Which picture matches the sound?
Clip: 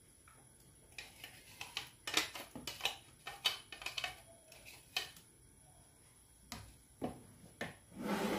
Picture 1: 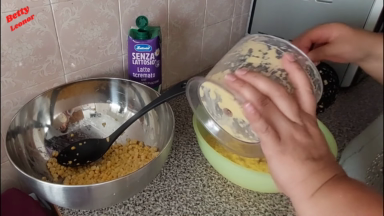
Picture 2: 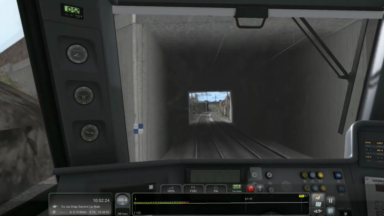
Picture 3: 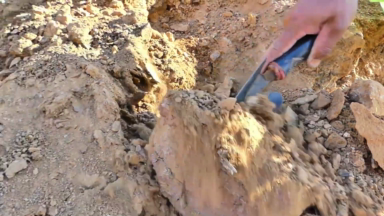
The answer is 1